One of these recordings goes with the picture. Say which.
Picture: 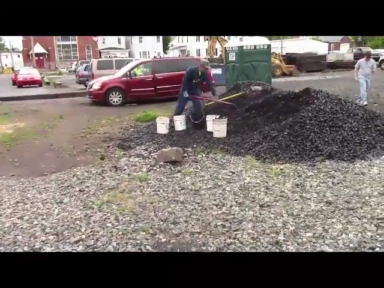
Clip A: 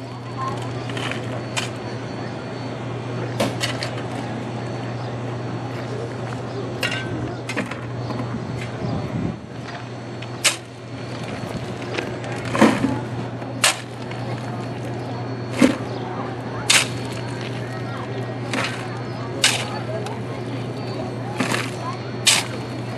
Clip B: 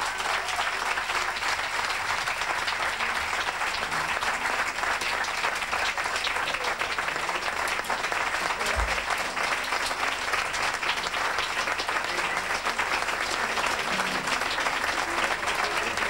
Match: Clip A